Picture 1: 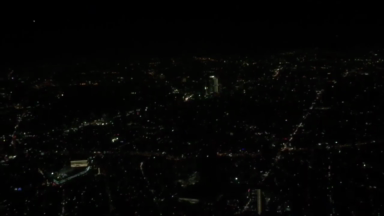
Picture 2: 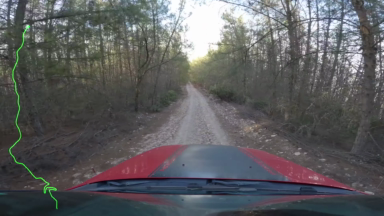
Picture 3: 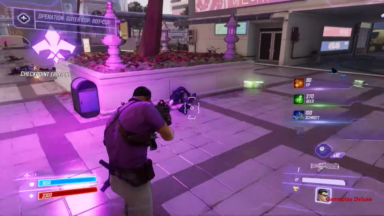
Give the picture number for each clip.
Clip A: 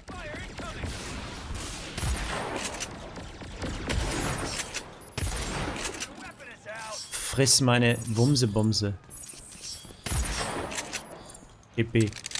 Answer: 3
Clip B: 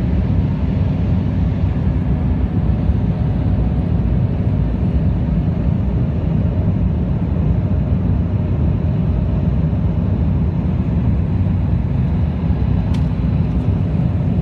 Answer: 1